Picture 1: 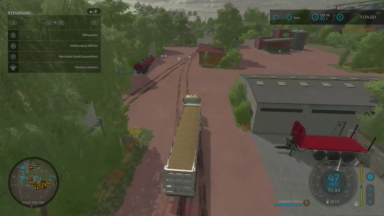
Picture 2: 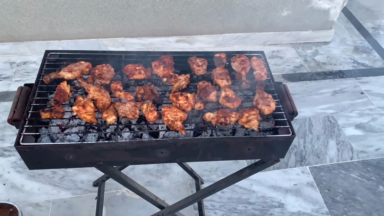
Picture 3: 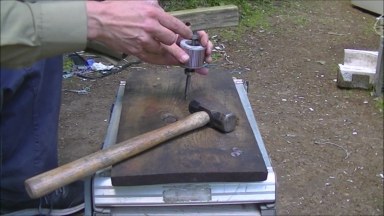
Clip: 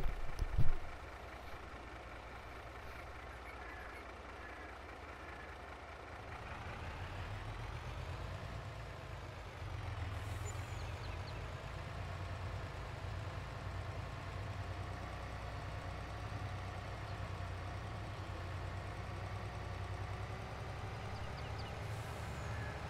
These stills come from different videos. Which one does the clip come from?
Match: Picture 1